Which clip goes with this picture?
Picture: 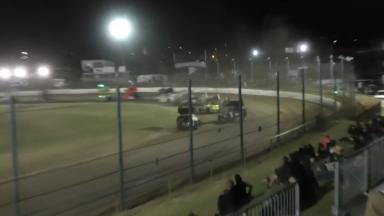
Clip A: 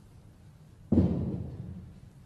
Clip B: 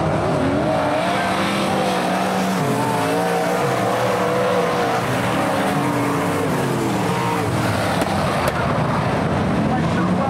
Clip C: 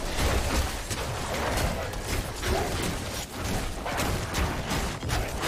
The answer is B